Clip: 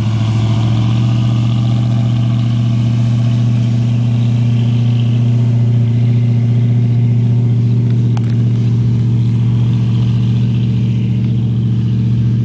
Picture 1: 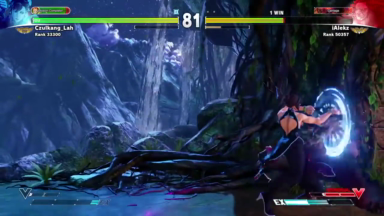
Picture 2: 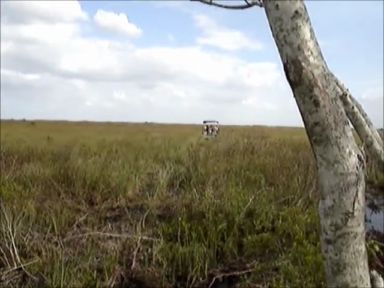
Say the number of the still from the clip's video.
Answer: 2